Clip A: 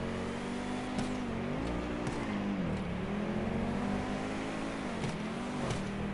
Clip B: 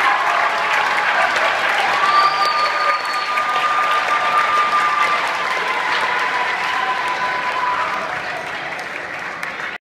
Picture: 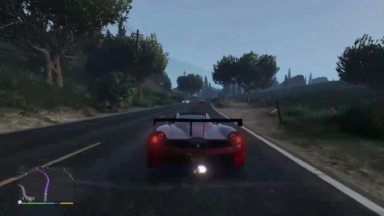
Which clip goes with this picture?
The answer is A